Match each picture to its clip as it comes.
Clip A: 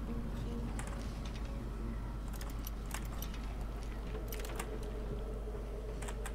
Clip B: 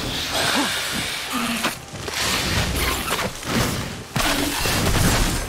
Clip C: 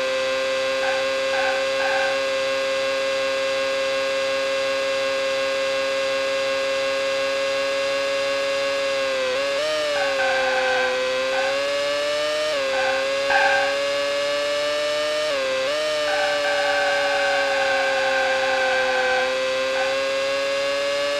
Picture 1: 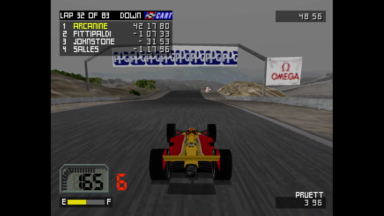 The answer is C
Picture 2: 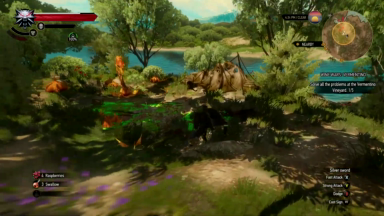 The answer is B